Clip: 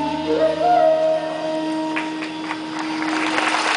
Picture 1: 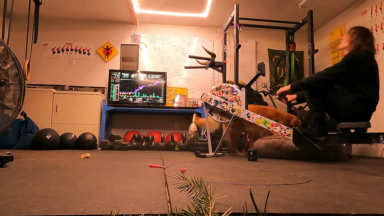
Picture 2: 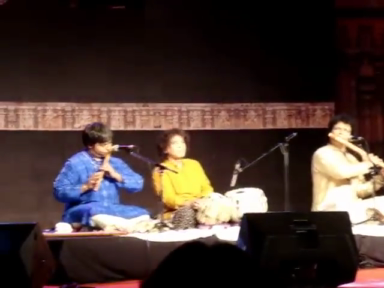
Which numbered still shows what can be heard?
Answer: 2